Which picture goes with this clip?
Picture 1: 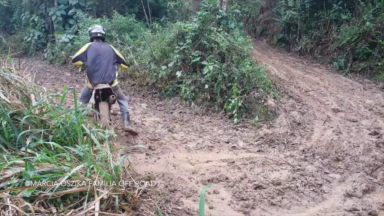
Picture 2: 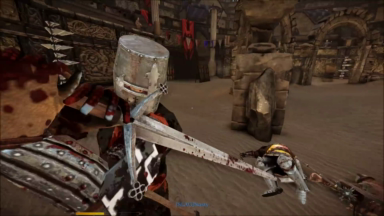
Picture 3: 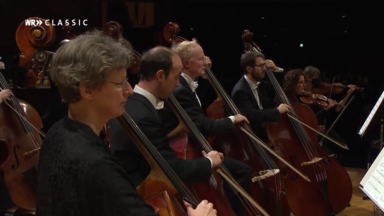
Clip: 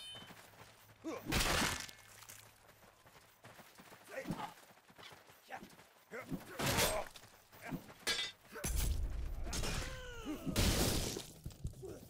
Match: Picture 2